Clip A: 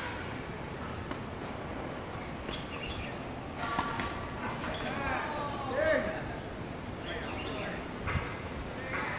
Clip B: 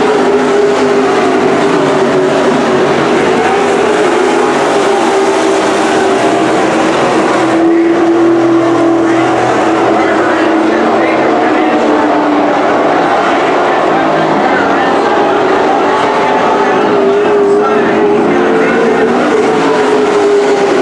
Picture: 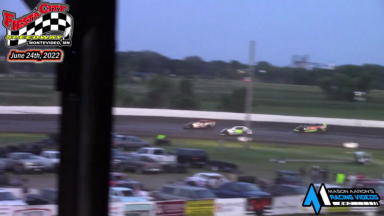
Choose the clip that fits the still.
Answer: B